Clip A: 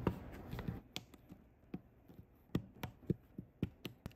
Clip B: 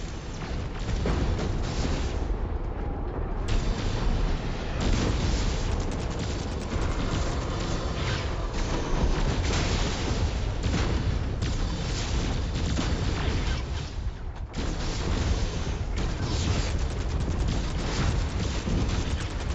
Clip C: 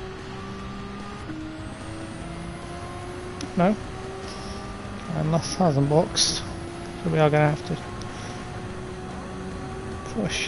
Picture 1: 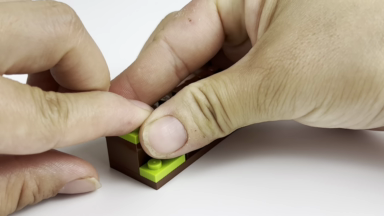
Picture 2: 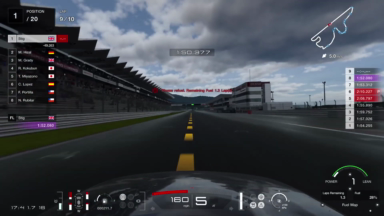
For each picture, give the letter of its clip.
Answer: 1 A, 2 C